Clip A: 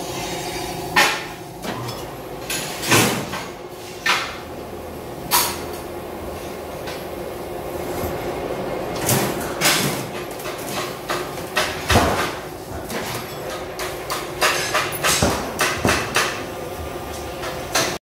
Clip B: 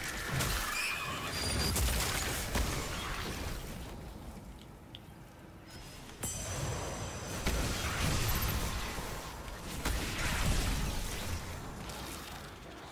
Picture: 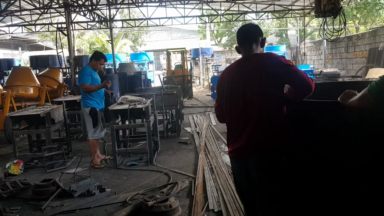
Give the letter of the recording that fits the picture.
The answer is A